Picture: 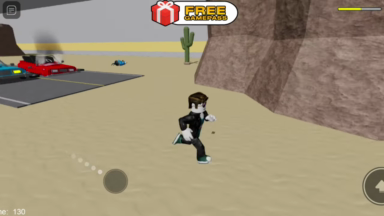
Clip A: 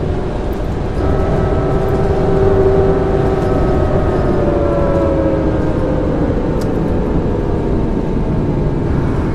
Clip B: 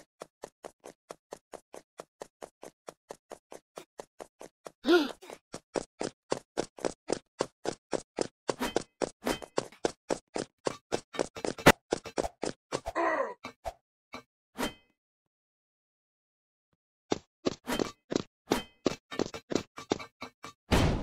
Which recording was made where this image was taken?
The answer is B